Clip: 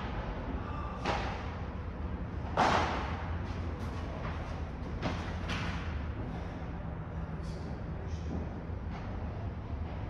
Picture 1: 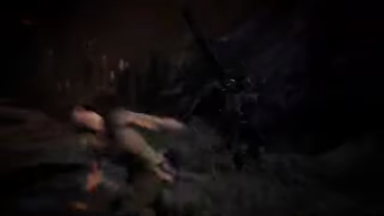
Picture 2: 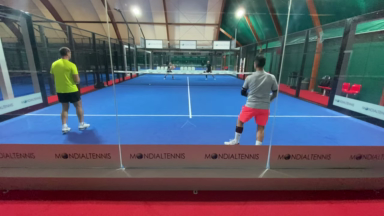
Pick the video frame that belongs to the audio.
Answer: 2